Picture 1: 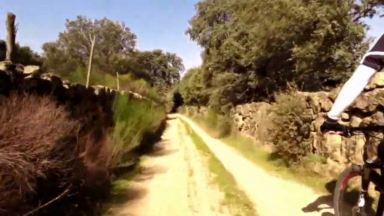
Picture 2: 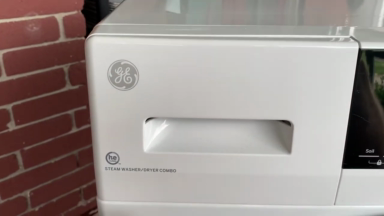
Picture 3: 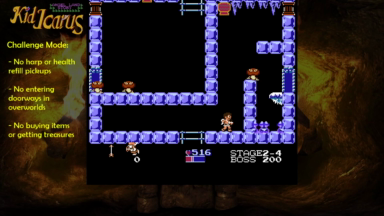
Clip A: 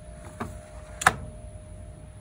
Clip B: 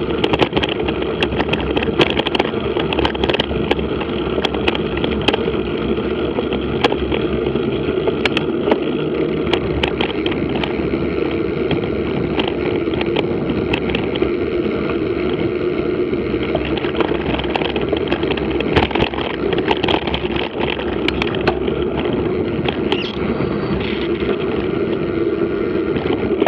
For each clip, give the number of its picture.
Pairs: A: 2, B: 1